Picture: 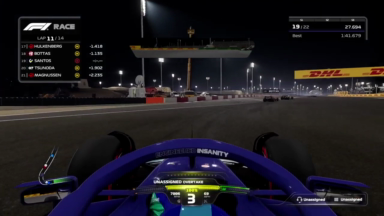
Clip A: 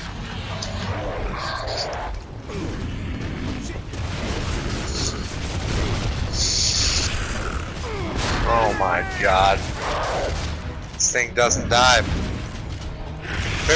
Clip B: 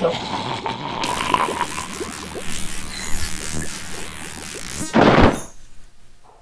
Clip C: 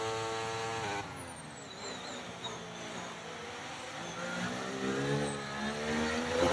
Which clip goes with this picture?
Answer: C